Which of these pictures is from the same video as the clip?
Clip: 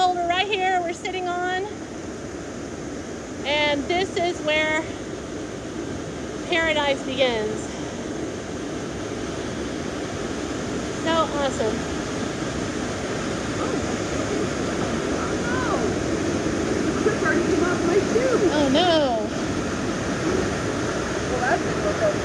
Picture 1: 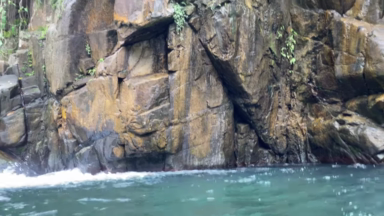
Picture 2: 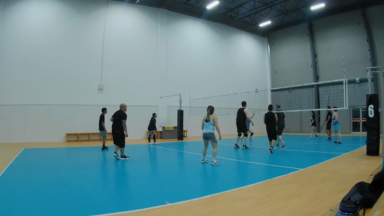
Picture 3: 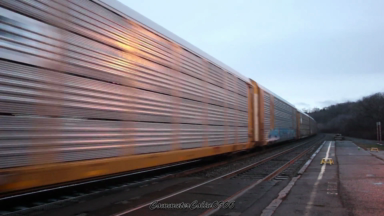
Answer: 1